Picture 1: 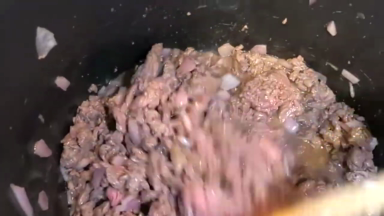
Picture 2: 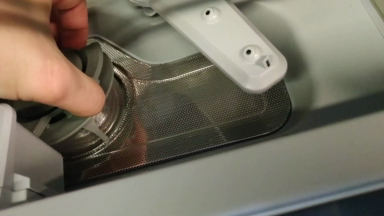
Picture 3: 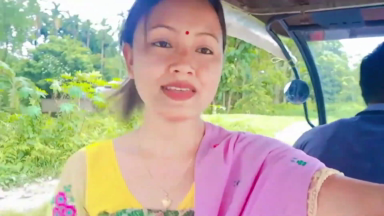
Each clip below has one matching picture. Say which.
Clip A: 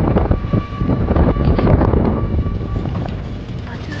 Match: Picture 3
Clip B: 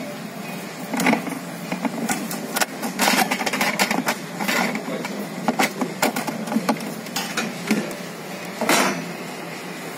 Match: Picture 2